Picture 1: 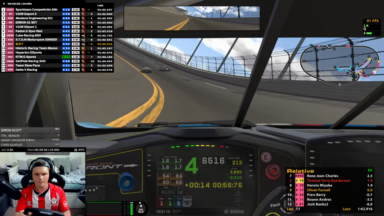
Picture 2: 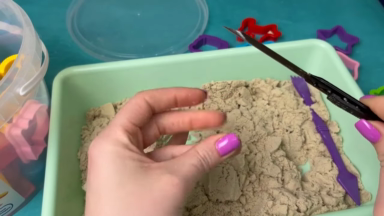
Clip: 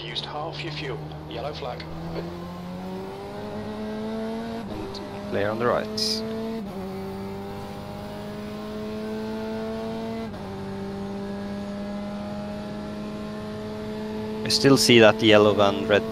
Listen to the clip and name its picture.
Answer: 1